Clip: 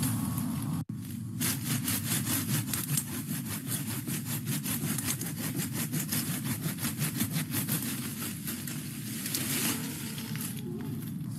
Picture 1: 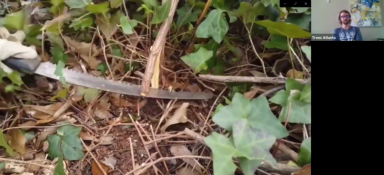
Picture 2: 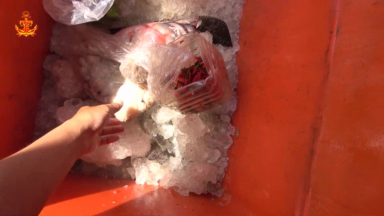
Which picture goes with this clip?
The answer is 1